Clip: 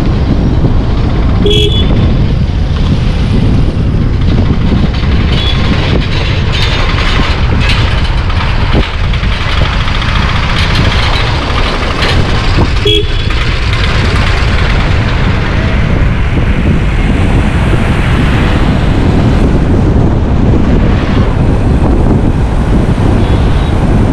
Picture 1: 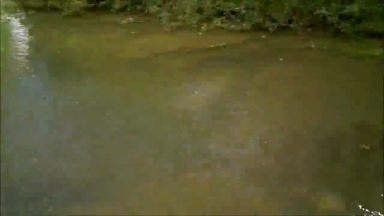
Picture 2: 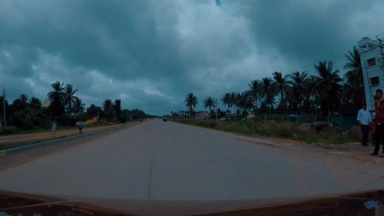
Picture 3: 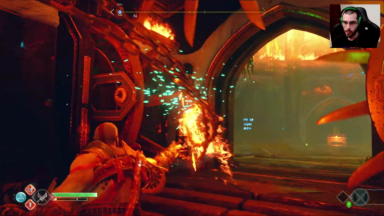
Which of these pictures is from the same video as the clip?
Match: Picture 2